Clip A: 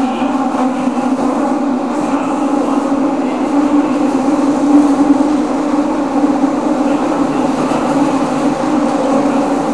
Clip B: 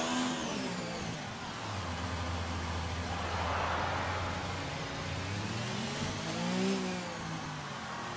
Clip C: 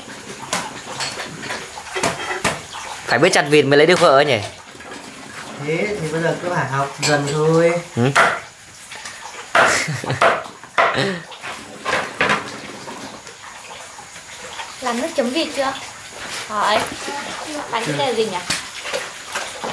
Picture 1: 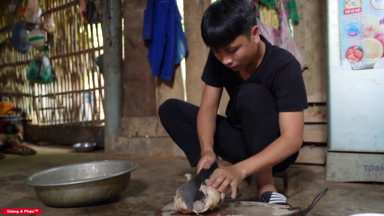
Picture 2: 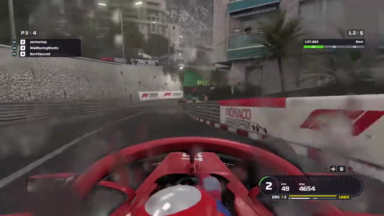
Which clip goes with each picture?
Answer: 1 C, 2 B